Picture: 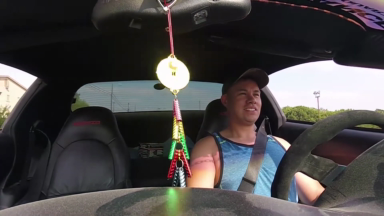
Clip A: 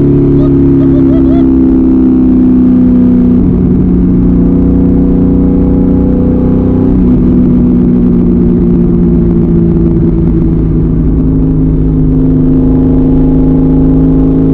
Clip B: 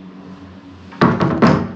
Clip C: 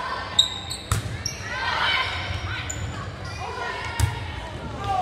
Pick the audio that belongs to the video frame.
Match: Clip A